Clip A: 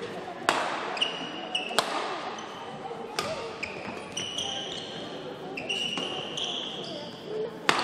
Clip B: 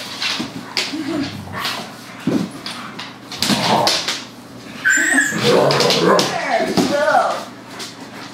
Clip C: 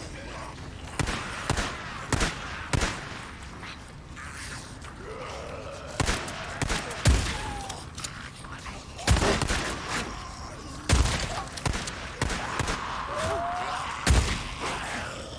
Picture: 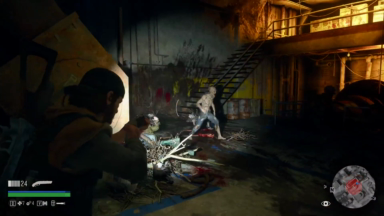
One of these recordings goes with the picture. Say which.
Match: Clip C